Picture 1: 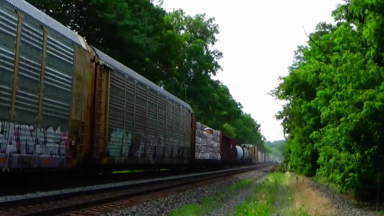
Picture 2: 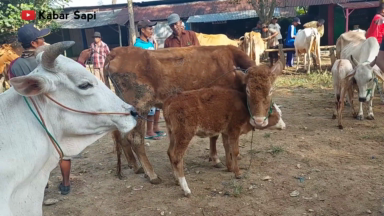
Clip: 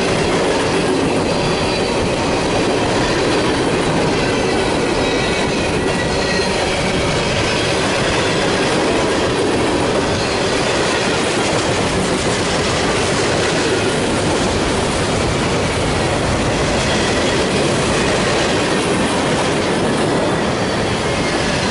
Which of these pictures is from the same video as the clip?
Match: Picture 1